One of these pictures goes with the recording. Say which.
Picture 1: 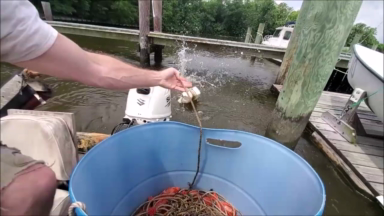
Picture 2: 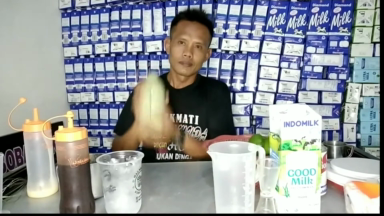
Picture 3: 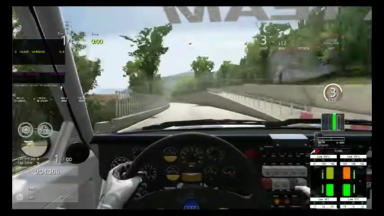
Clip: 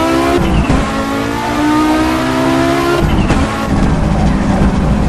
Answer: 3